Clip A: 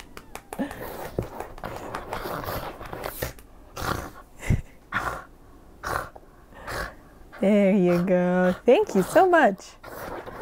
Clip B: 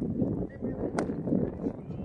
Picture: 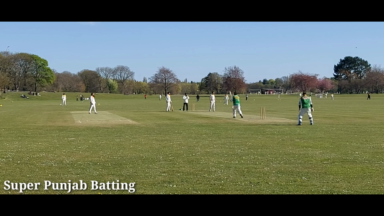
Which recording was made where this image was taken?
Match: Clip B